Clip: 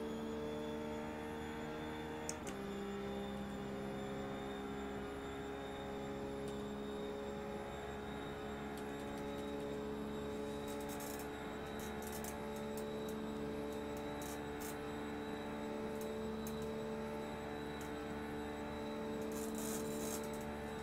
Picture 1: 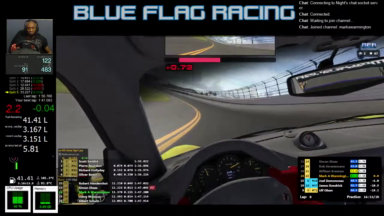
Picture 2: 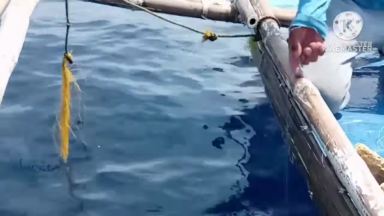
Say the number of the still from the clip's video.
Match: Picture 1